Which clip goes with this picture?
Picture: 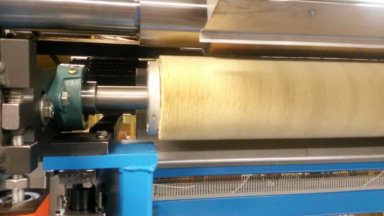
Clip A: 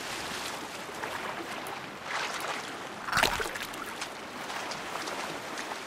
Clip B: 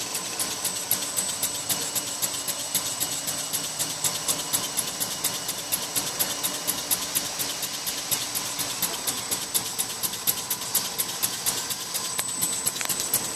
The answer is B